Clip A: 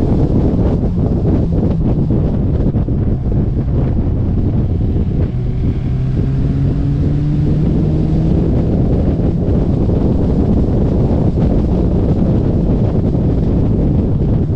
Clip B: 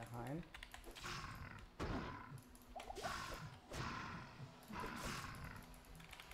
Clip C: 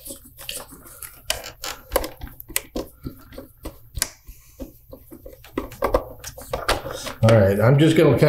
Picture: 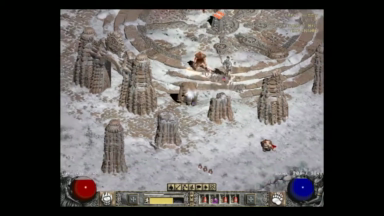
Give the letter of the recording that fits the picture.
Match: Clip B